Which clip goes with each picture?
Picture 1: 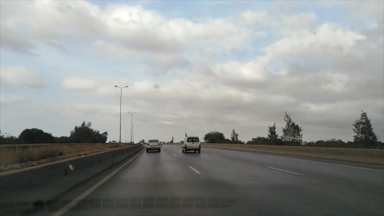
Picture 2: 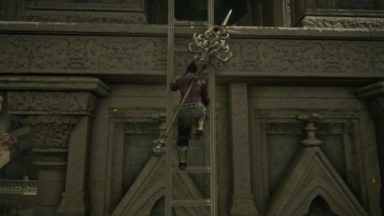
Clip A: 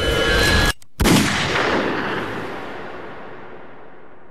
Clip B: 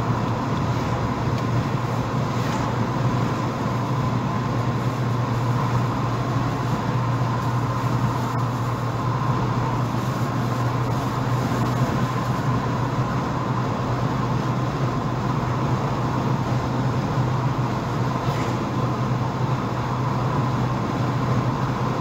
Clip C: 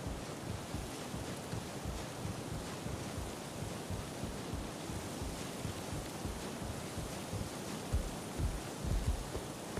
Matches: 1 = B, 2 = C